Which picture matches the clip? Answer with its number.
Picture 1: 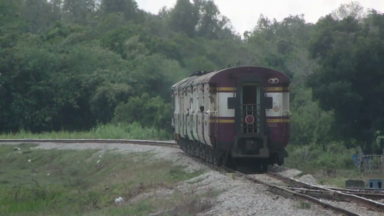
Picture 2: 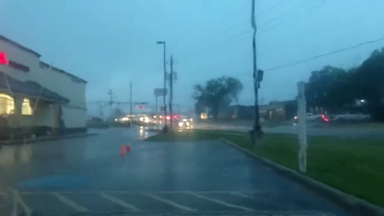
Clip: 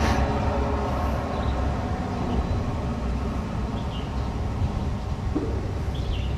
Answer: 1